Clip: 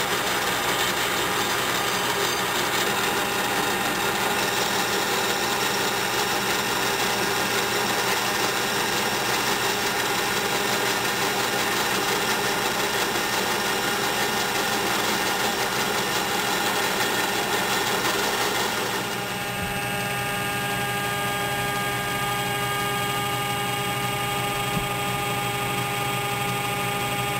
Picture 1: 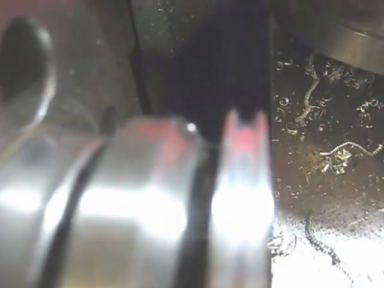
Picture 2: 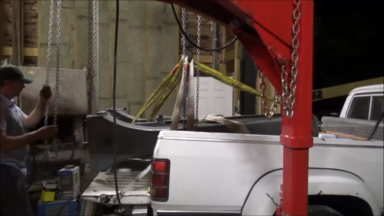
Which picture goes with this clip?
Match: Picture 1